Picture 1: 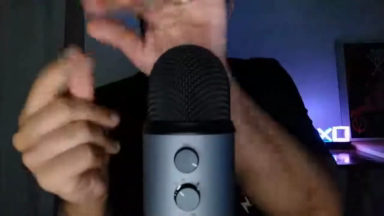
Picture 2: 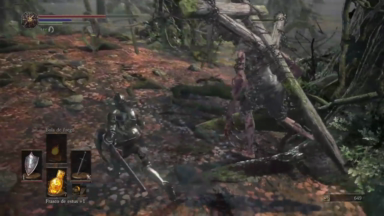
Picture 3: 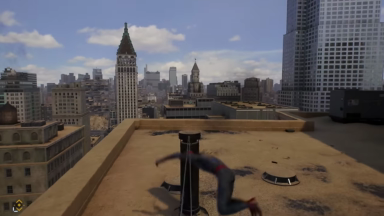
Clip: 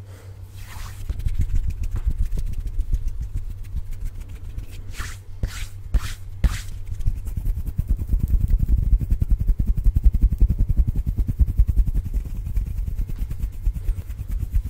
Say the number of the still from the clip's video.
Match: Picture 1